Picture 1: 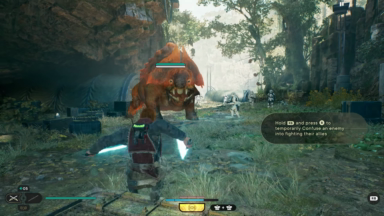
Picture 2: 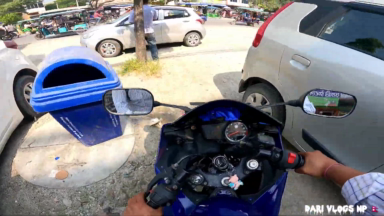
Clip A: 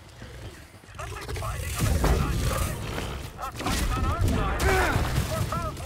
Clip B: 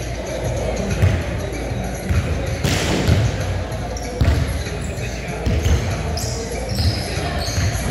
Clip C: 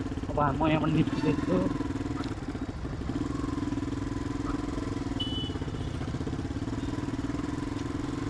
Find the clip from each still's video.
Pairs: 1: A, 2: C